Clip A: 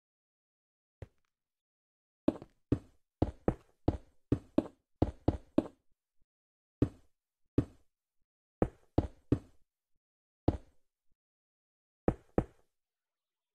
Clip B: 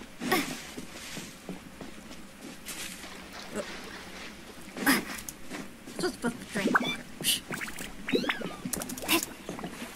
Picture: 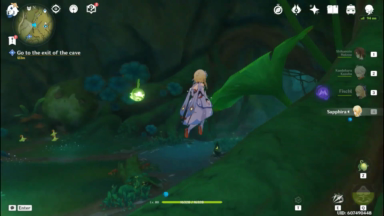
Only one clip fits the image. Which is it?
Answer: B